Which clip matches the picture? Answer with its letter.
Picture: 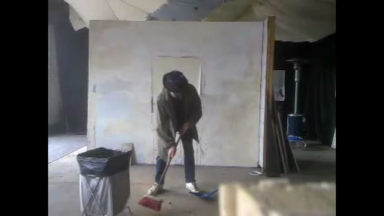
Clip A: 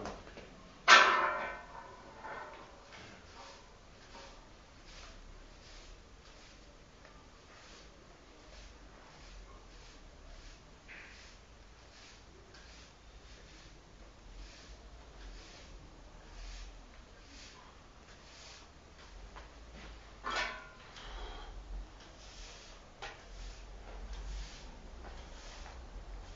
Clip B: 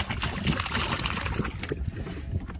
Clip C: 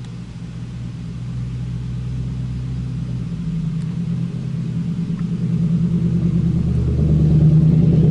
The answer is A